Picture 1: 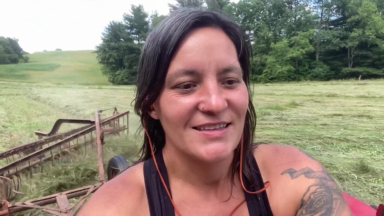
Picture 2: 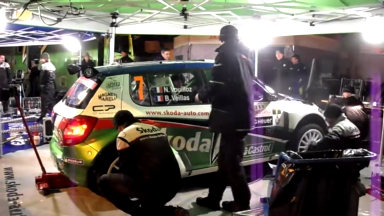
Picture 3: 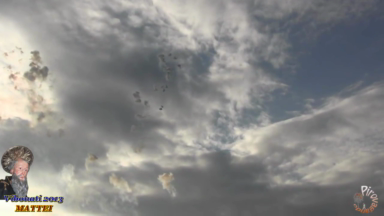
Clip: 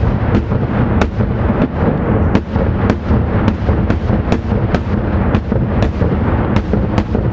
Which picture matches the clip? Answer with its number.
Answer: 3